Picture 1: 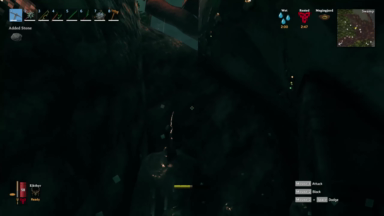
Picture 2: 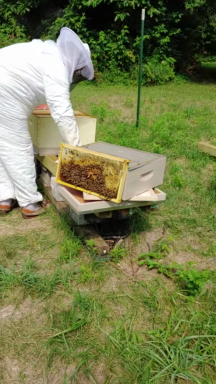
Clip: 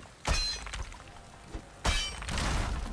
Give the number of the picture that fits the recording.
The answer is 1